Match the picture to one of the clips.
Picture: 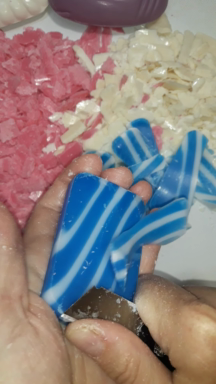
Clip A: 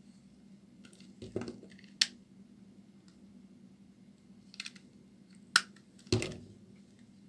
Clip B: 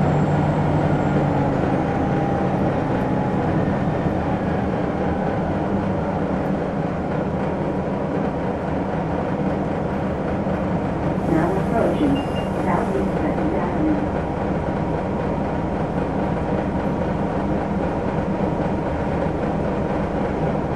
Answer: A